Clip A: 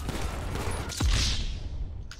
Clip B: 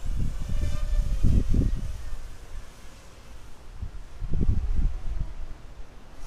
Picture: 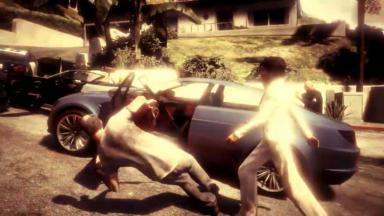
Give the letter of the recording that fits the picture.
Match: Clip A